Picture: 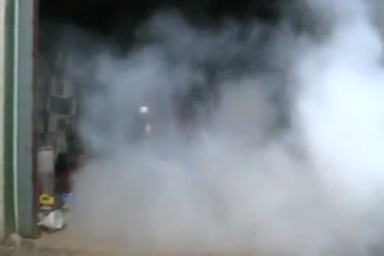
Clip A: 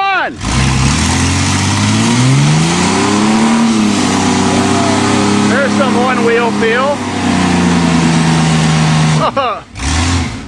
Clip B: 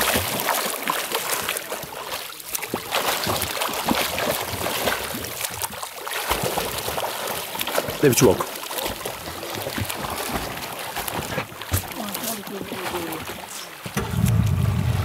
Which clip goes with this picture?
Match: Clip A